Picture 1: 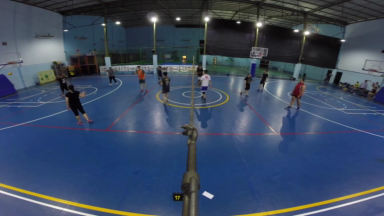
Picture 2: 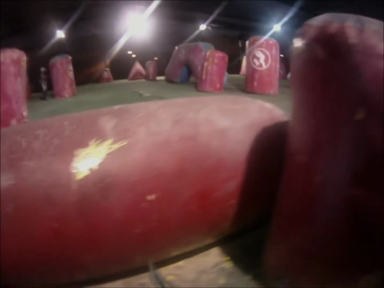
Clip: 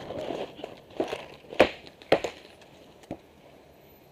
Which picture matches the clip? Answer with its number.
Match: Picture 2